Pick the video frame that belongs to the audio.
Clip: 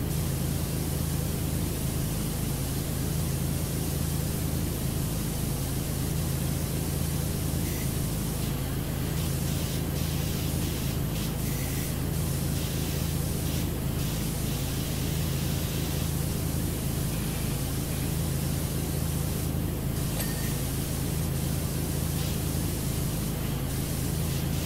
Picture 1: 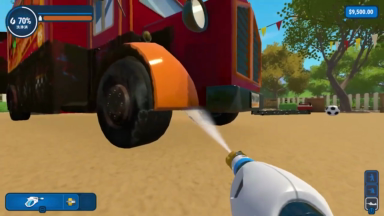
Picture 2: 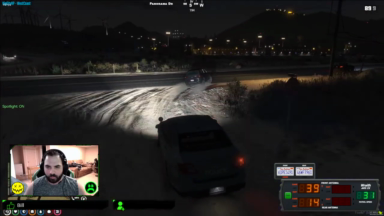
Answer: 1